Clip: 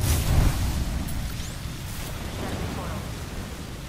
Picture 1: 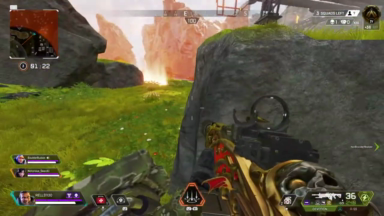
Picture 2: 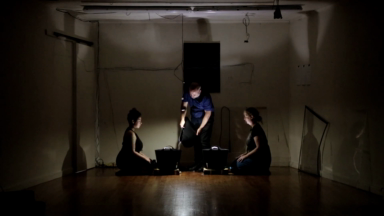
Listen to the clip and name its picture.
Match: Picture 1